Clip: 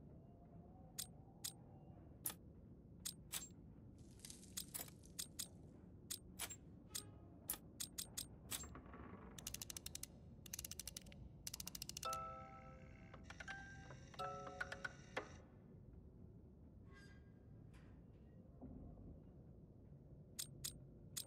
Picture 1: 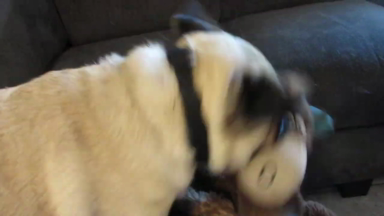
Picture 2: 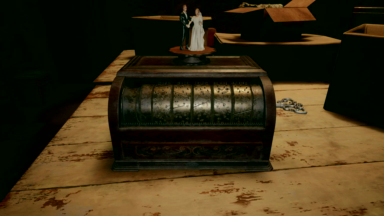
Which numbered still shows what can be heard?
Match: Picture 2